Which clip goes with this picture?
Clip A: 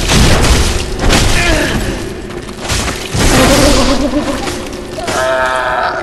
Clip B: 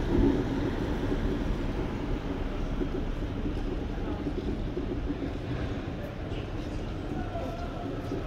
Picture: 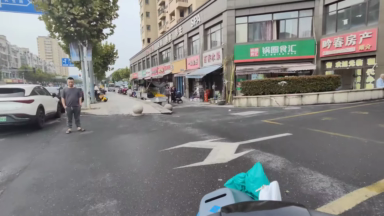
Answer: B